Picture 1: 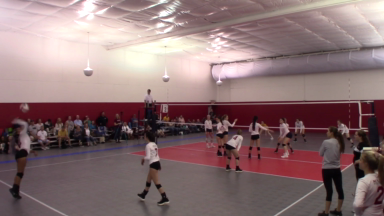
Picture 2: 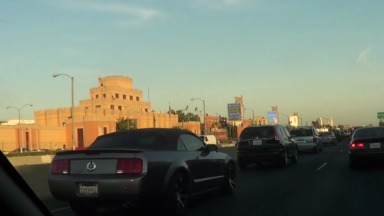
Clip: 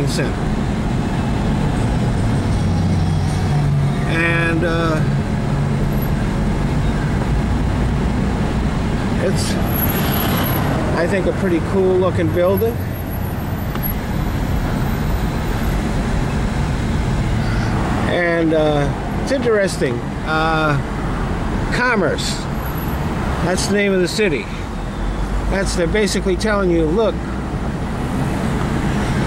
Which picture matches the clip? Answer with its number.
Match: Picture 2